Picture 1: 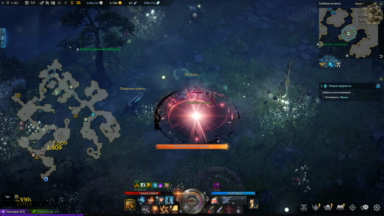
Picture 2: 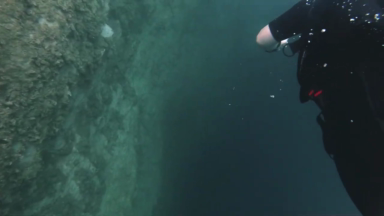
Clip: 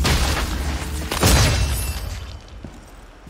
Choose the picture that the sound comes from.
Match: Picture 1